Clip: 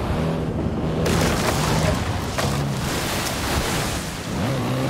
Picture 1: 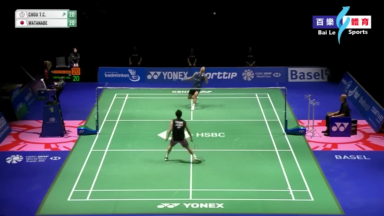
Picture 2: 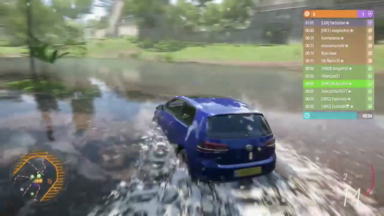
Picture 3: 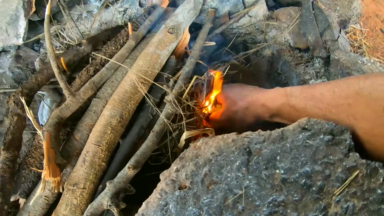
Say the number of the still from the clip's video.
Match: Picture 2